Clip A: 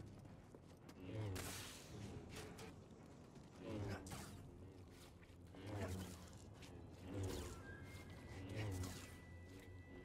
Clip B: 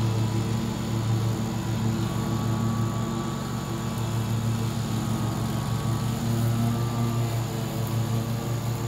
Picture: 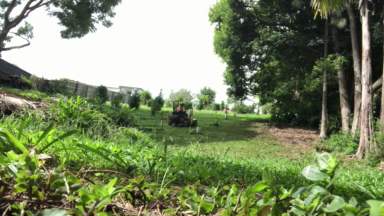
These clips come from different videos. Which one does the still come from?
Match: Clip B